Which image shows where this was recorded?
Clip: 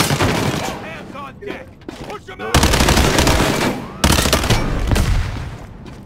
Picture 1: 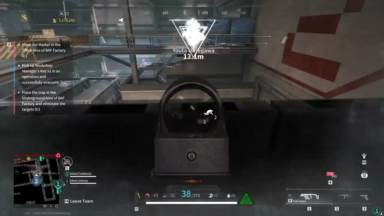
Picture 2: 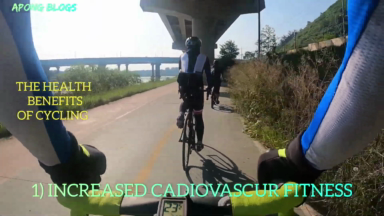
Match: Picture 1